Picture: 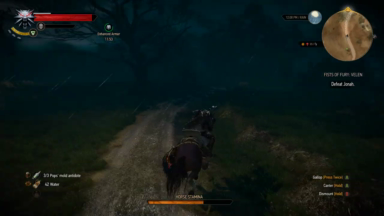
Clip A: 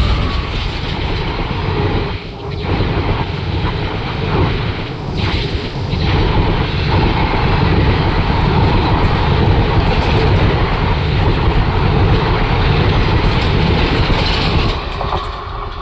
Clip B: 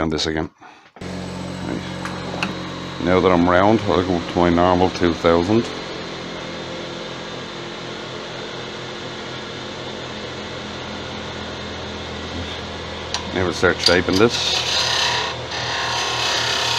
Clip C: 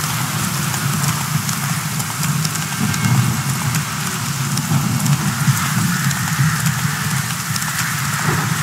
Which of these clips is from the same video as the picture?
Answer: C